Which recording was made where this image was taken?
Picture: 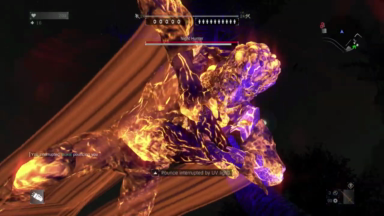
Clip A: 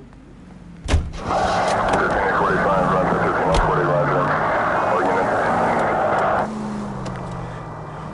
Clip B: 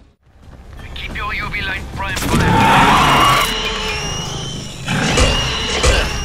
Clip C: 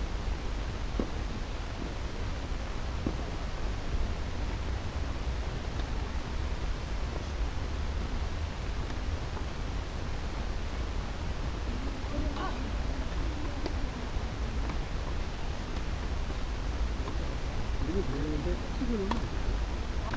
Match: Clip B